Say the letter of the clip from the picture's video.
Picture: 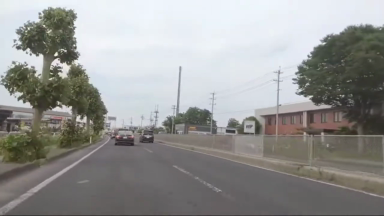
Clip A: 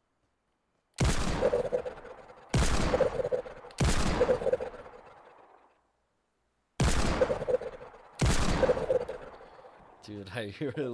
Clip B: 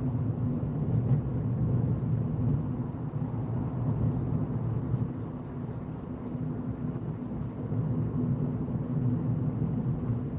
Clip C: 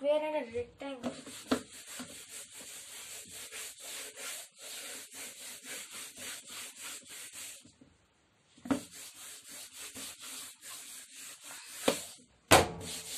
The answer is B